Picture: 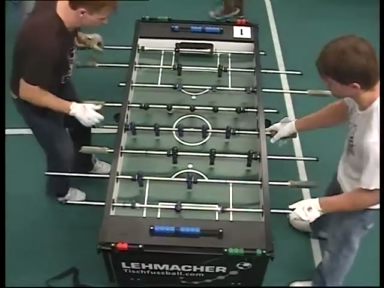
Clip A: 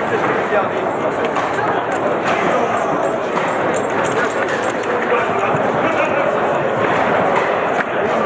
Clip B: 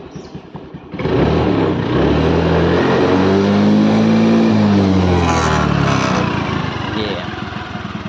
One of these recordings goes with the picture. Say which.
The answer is A